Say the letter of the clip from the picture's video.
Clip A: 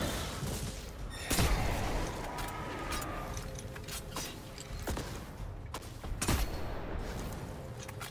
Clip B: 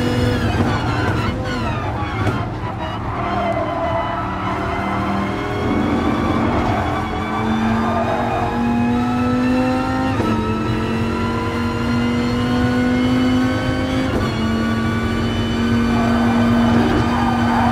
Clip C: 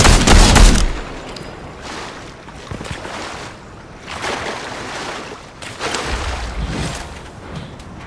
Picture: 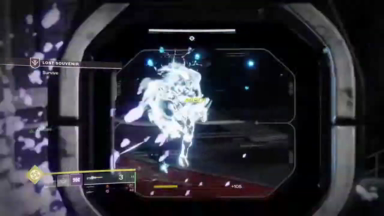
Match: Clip A